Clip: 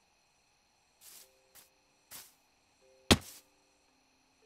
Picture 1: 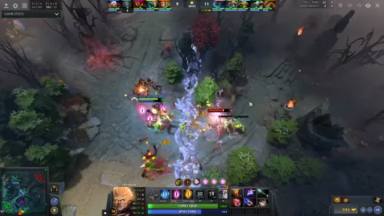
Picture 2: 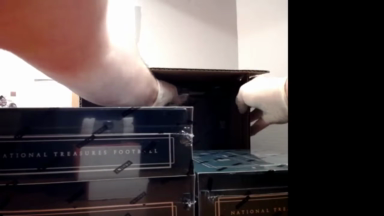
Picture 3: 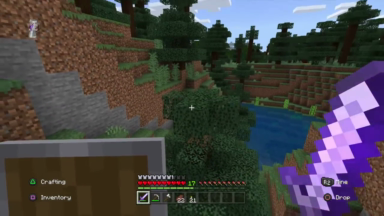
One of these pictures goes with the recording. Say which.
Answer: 3